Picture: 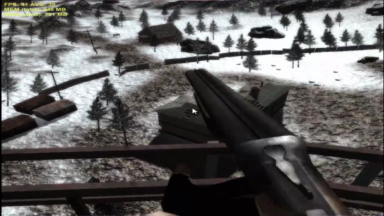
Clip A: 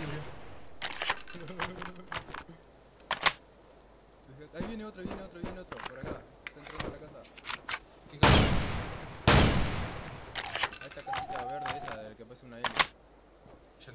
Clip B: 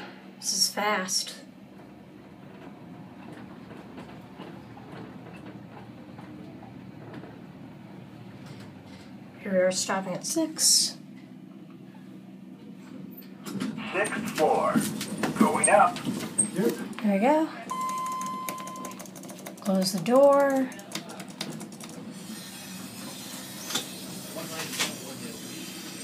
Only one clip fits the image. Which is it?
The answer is A